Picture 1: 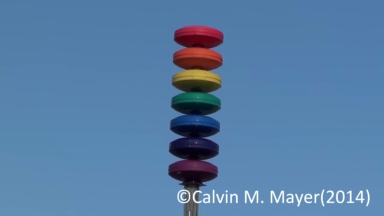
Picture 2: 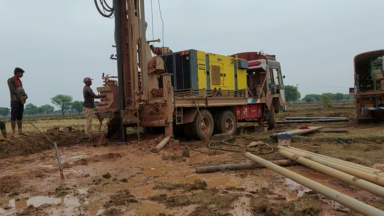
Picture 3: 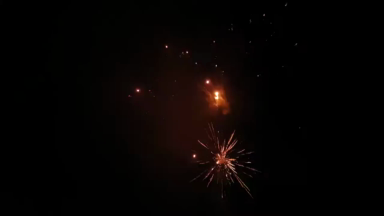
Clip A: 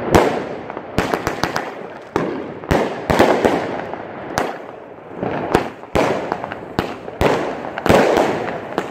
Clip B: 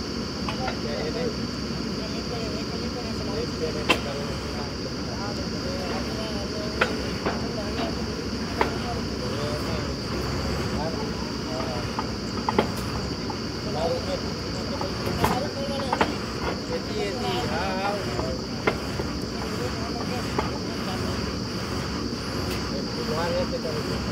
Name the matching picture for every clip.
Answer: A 3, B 2